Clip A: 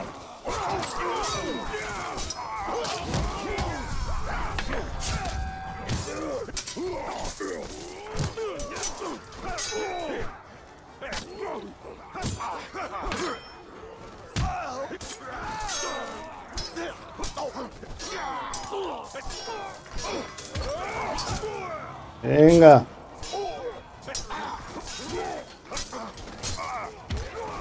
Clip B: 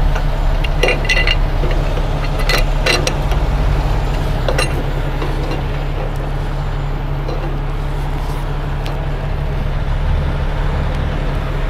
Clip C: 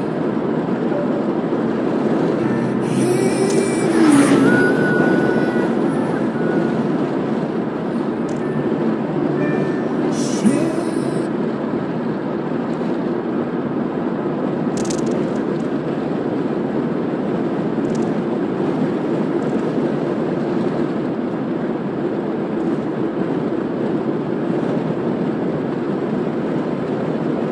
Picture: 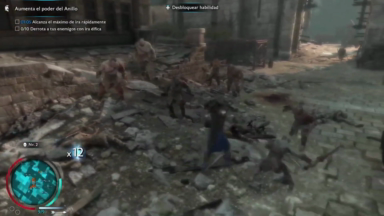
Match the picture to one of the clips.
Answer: A